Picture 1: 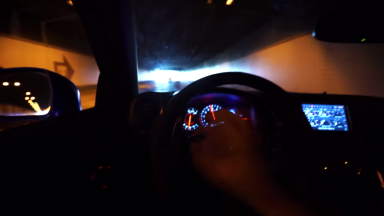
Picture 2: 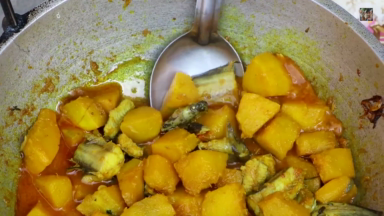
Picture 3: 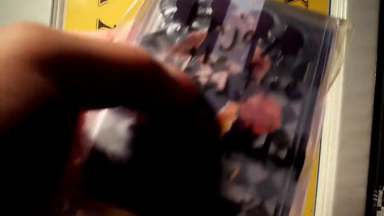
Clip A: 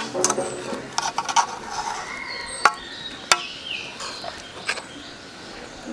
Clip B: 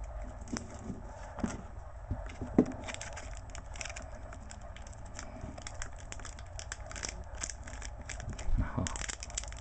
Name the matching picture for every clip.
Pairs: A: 2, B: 3